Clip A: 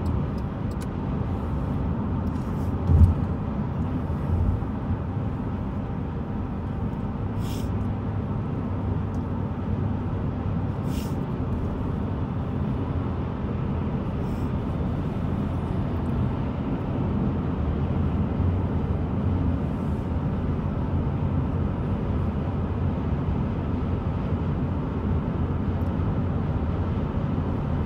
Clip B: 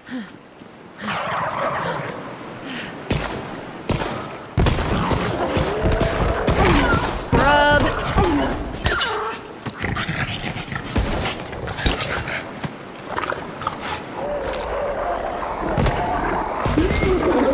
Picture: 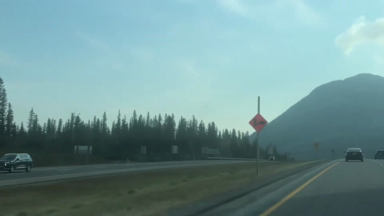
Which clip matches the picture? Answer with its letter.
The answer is A